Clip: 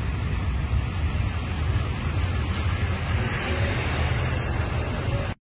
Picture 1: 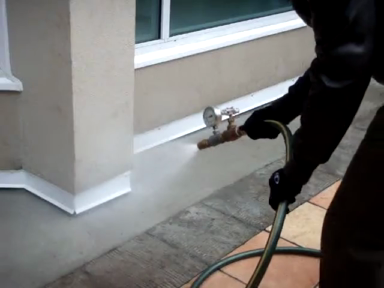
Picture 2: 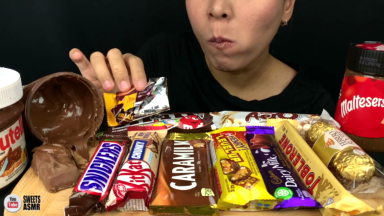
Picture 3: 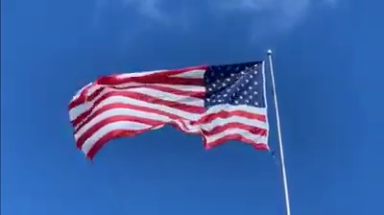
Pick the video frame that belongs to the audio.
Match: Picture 3